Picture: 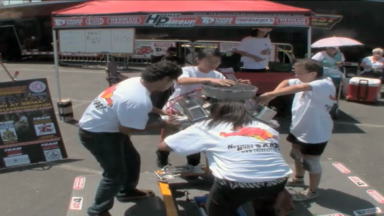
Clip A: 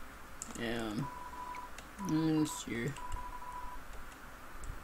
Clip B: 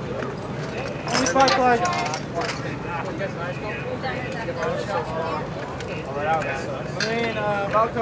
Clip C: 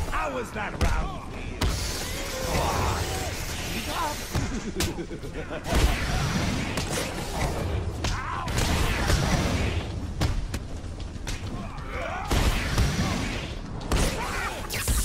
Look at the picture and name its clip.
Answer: B